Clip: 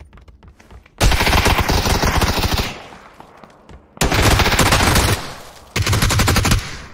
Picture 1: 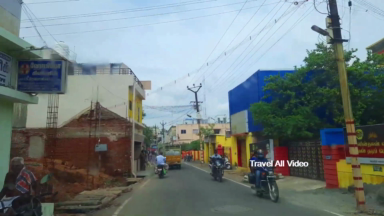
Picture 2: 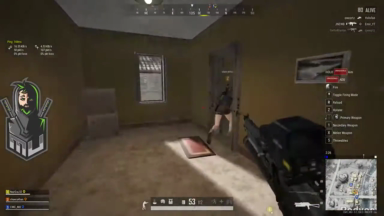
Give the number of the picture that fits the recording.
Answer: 2